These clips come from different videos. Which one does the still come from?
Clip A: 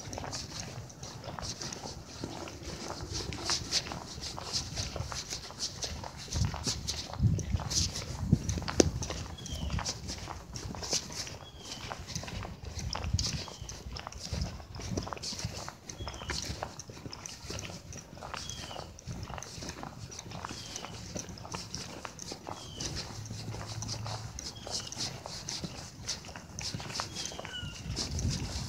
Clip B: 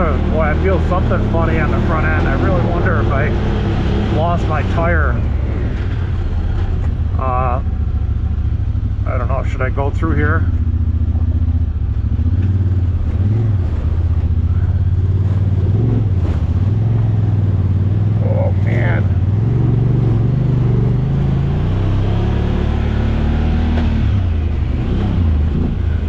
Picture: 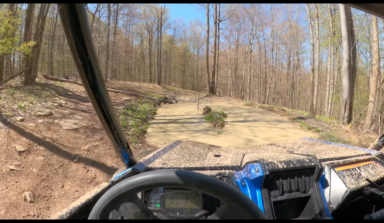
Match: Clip B